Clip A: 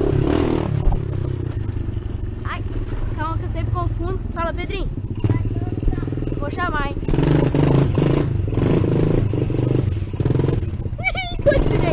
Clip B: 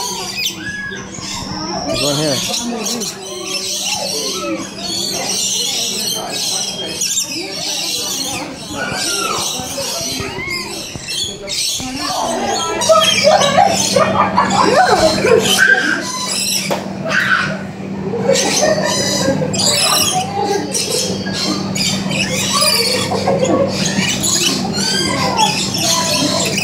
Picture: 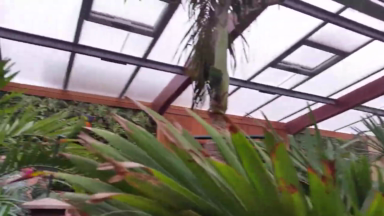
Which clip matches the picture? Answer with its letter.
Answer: B